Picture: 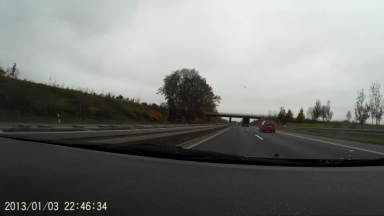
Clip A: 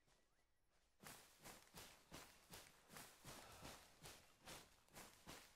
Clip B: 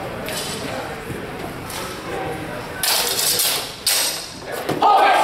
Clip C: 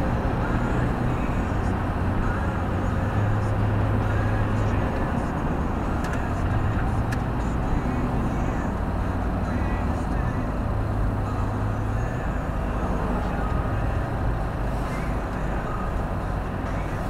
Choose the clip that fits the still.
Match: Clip C